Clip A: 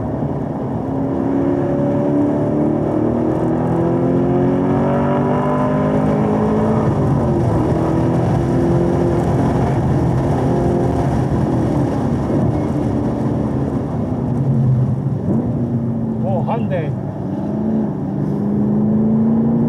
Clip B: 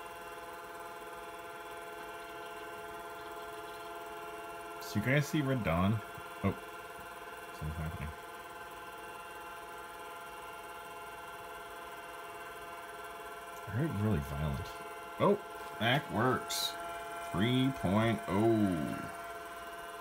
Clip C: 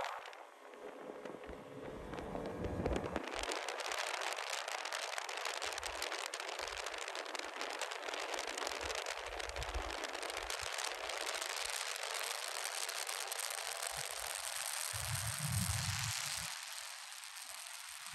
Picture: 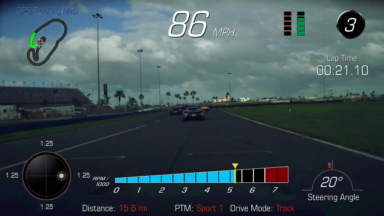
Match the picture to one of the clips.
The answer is A